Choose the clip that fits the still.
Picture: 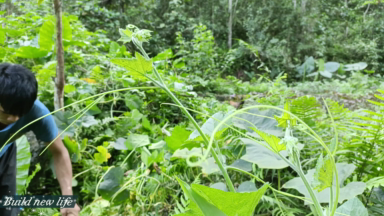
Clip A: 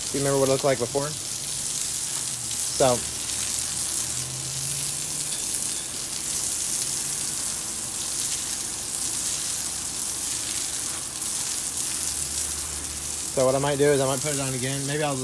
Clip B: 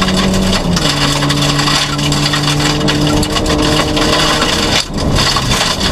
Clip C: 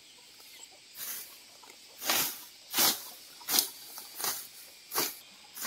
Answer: C